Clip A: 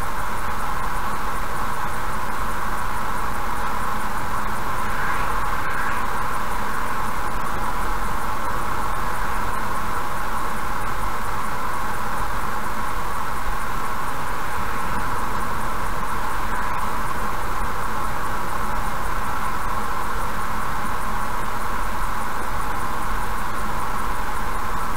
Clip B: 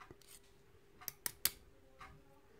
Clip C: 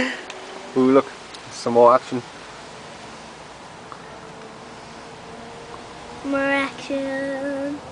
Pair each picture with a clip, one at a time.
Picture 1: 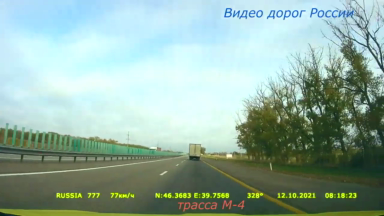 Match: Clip A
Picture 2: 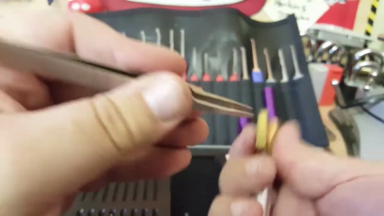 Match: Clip B